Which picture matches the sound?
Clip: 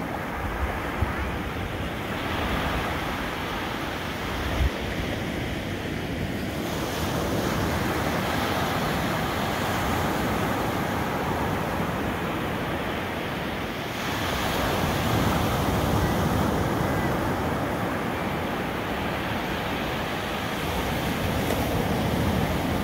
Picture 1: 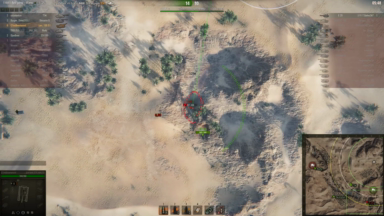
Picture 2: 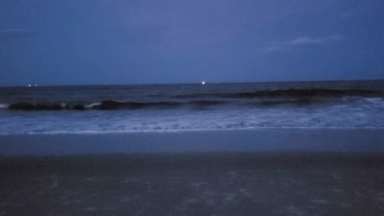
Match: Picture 2